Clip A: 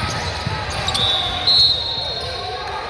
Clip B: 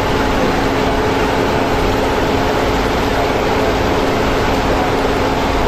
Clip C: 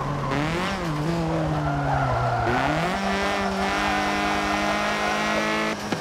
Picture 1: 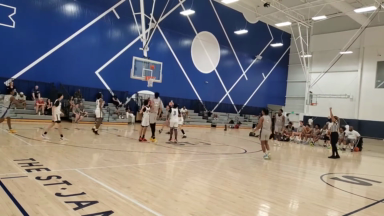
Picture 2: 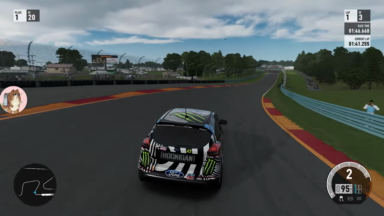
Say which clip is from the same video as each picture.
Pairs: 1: A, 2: C